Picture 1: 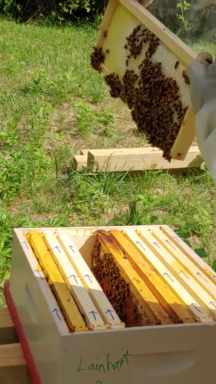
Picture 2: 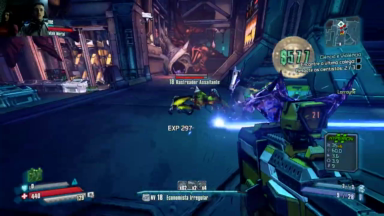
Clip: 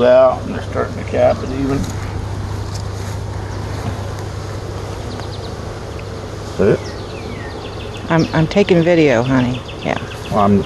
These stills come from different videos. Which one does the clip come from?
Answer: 1